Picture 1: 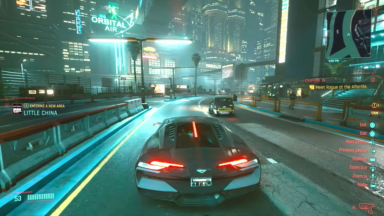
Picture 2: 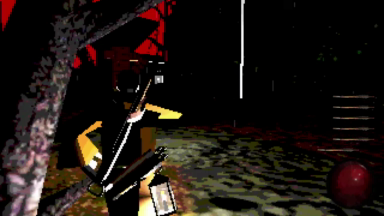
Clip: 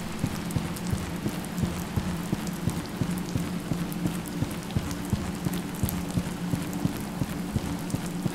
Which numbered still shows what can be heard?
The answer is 2